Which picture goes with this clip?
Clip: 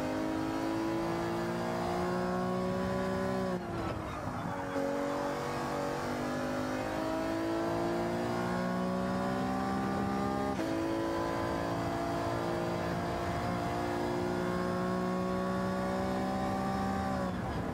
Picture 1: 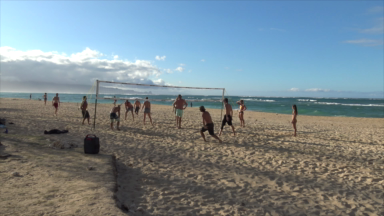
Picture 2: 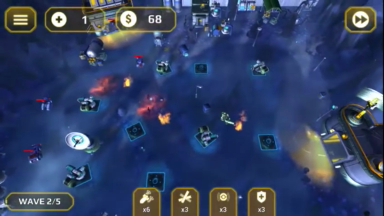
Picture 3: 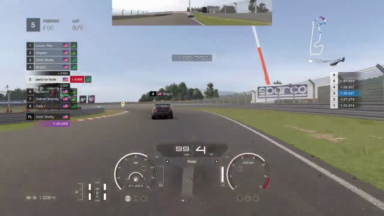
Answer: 3